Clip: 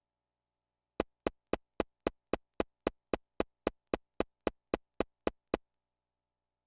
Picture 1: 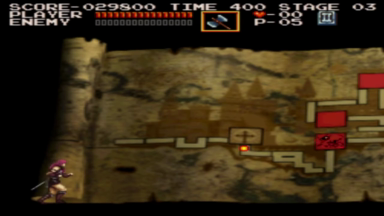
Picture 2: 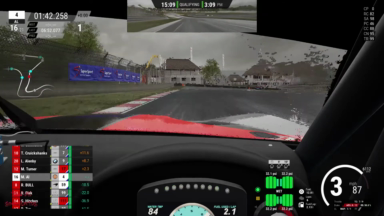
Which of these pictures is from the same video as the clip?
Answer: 1